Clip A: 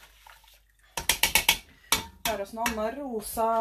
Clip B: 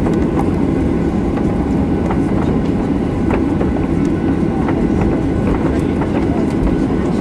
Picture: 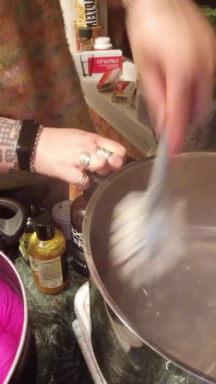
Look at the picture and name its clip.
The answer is A